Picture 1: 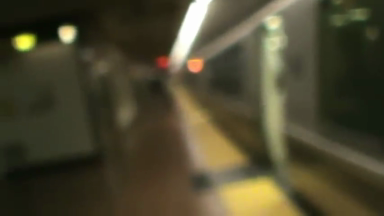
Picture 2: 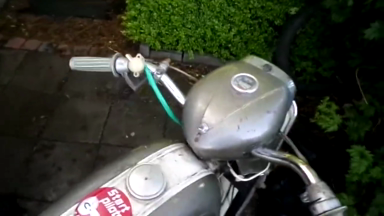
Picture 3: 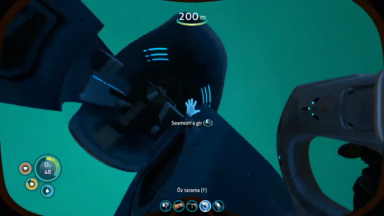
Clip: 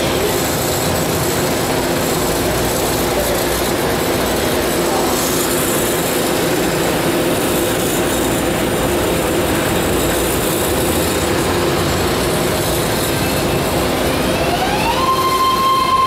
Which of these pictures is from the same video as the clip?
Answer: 1